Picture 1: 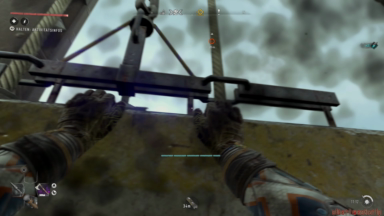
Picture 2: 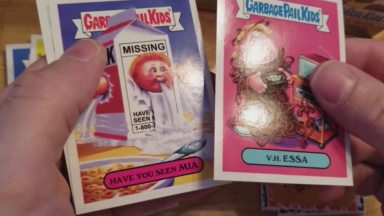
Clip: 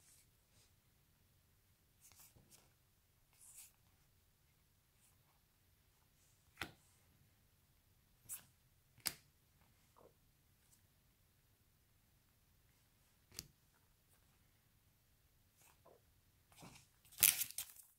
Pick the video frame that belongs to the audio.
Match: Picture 2